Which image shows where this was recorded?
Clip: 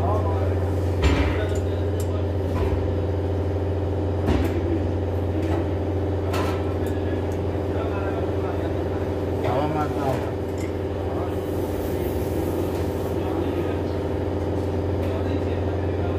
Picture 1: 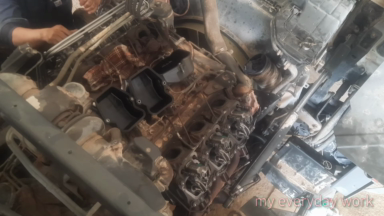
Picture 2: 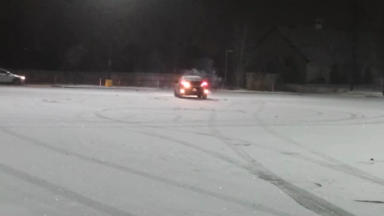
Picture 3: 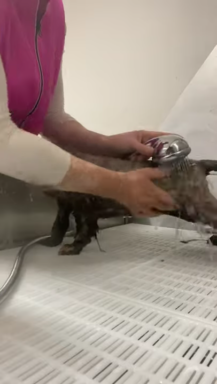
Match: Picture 1